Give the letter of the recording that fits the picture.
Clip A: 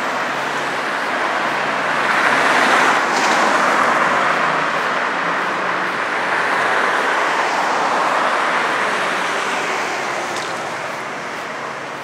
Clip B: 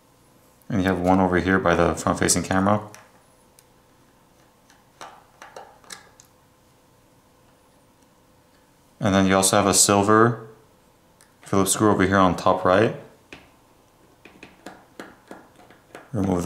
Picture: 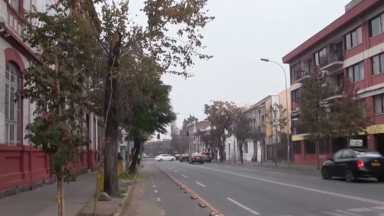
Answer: A